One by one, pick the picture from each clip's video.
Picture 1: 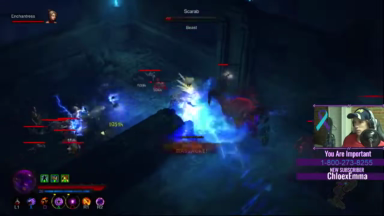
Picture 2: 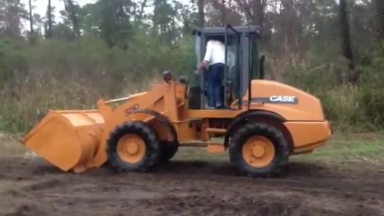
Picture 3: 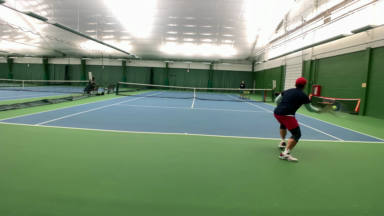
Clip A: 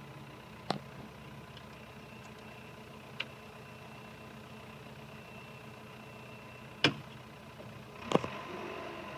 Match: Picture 2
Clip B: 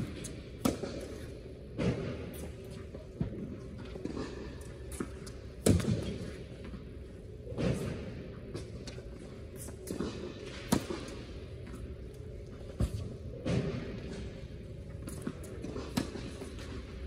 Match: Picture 3